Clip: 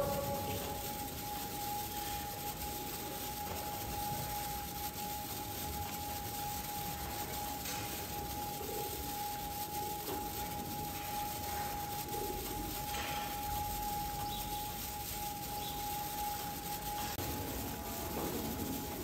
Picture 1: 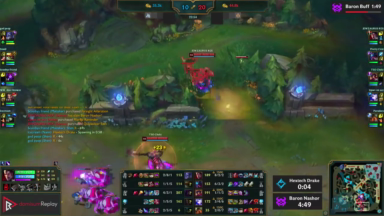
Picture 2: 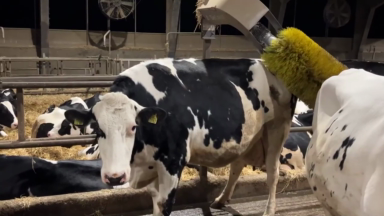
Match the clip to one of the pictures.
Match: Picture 2